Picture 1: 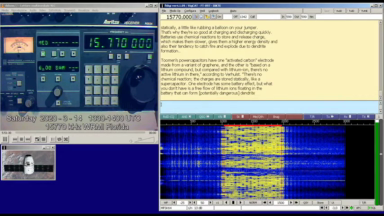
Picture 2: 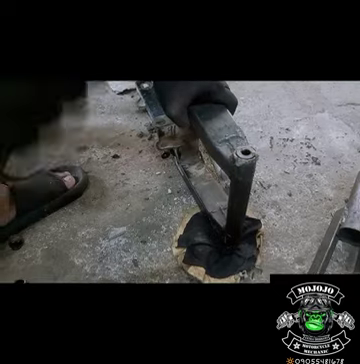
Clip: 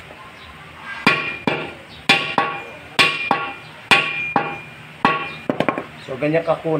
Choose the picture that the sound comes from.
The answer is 2